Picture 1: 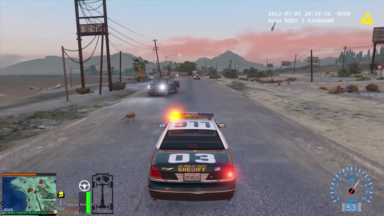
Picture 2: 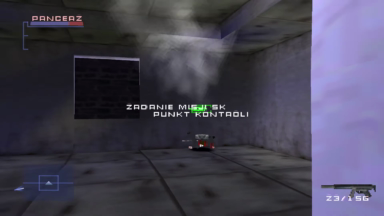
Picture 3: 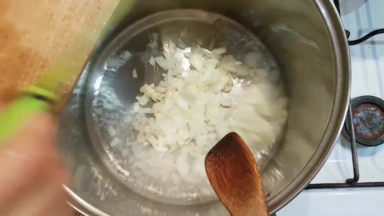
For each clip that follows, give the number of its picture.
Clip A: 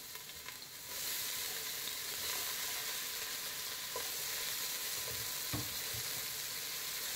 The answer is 3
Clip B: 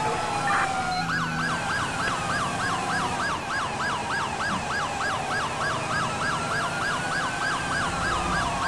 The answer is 1